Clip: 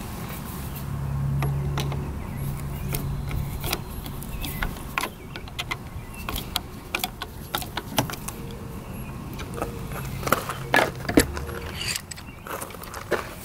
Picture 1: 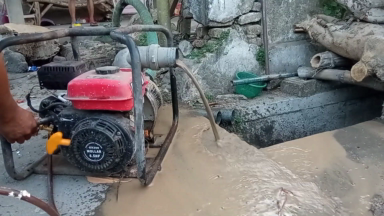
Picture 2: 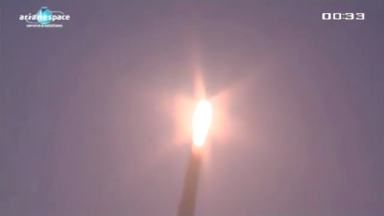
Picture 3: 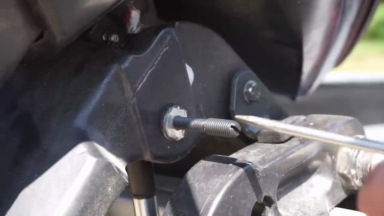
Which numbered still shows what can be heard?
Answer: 3